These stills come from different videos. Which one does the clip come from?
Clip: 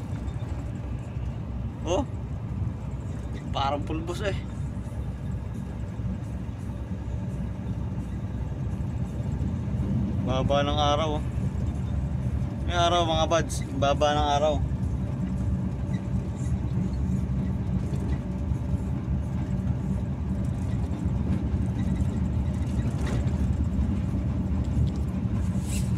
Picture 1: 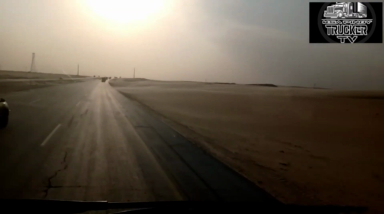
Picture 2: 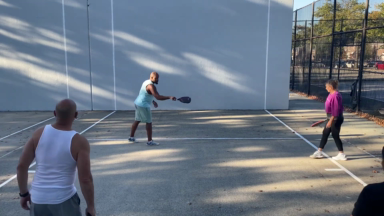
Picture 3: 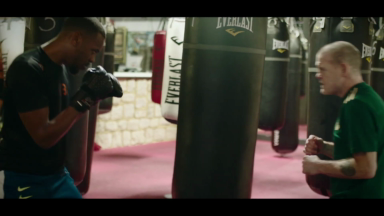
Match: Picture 1